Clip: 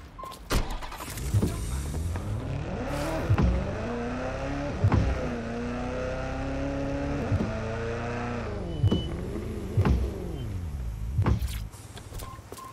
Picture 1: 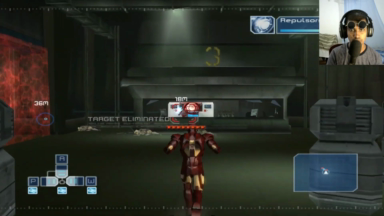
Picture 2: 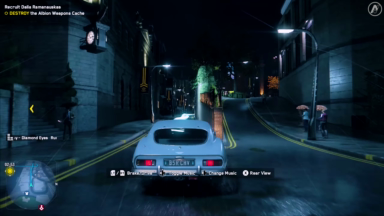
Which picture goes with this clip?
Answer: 2